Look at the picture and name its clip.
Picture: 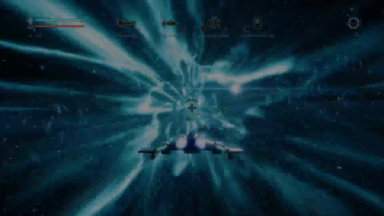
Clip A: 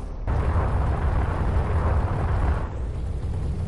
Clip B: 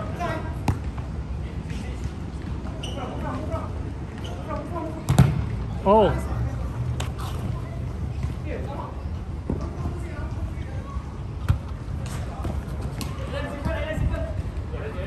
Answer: A